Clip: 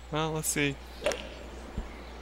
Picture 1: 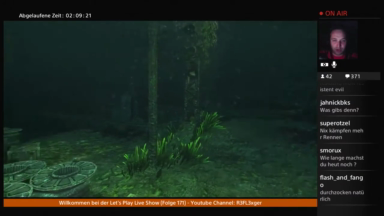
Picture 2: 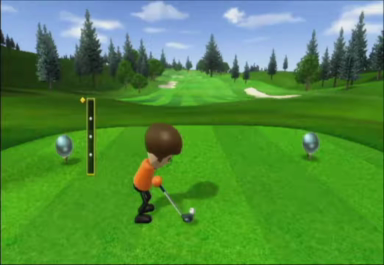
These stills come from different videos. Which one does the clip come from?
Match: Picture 2